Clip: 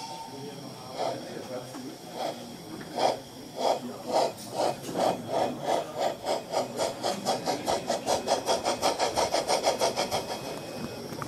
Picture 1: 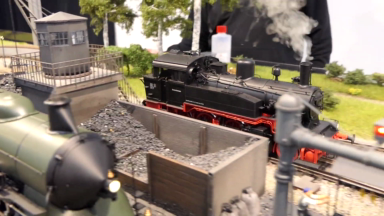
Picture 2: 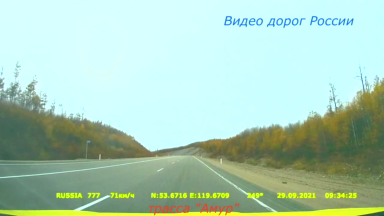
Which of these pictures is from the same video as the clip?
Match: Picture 1